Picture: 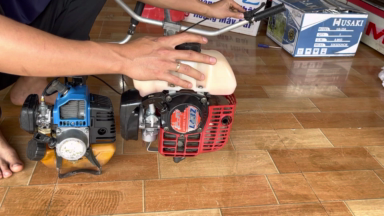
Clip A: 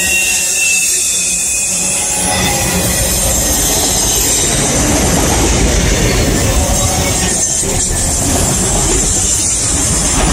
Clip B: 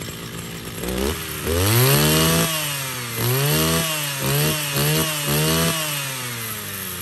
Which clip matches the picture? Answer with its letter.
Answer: B